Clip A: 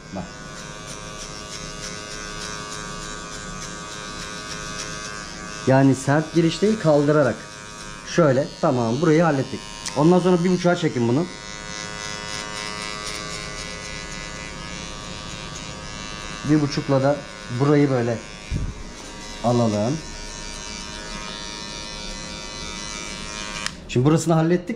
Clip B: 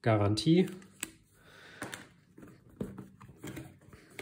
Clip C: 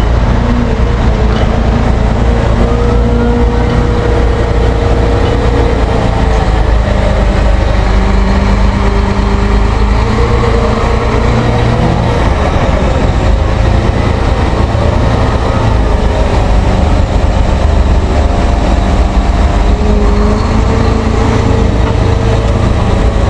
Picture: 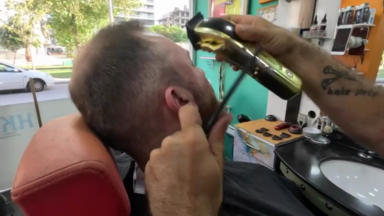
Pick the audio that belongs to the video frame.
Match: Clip A